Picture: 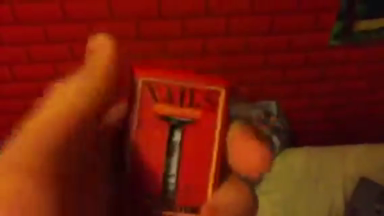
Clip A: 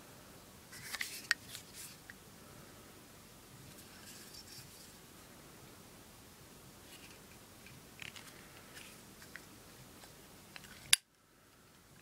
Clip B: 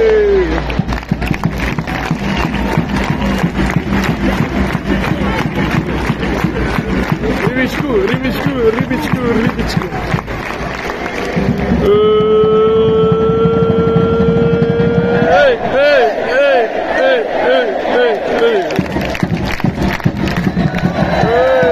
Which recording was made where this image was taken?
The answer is A